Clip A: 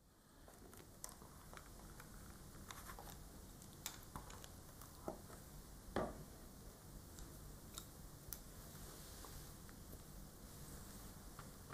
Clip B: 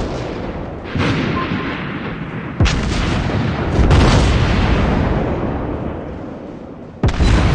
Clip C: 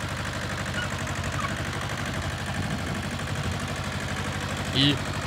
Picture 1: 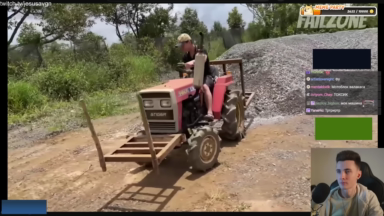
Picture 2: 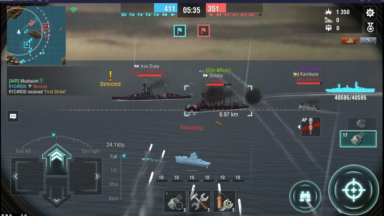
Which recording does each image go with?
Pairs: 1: C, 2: B